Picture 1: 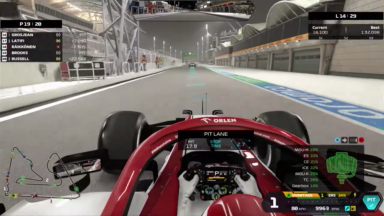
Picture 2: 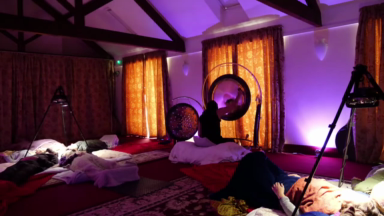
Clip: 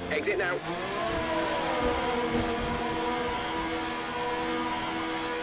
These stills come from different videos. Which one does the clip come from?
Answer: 1